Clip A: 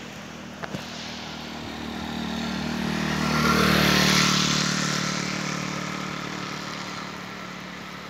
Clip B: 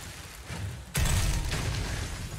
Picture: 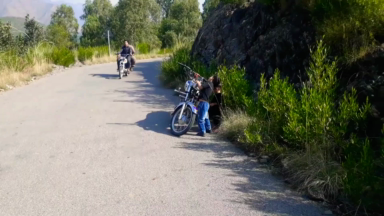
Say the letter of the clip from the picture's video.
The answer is A